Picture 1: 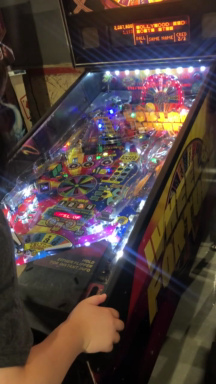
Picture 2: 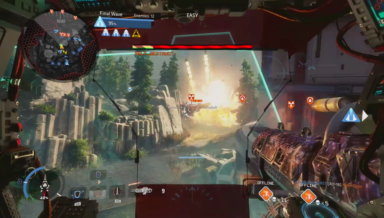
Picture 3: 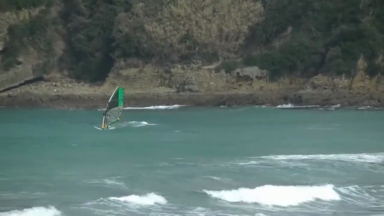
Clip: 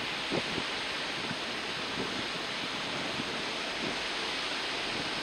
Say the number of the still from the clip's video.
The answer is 3